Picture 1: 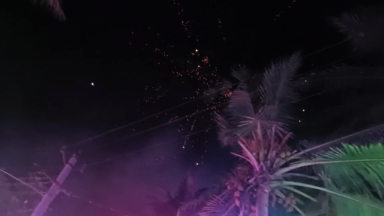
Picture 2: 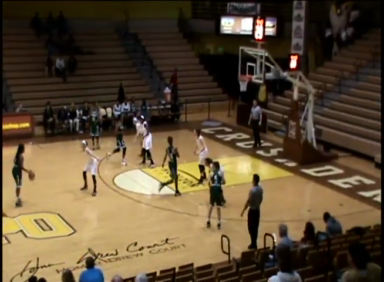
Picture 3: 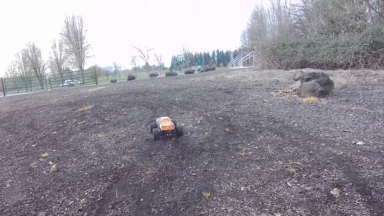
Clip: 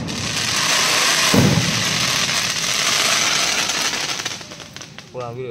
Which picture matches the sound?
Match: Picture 1